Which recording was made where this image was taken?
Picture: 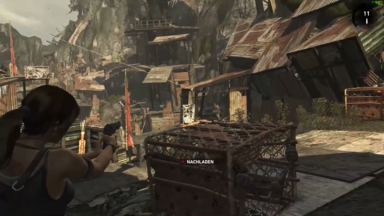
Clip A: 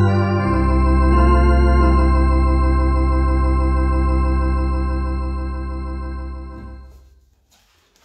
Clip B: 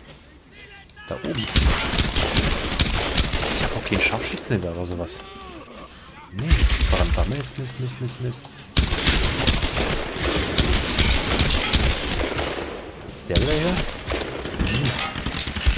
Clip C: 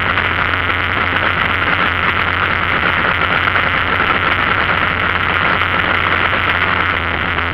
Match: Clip B